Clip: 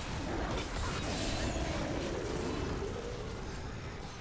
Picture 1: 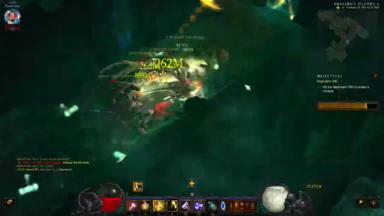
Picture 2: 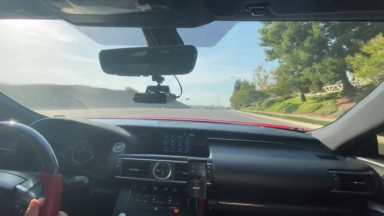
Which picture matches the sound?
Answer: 1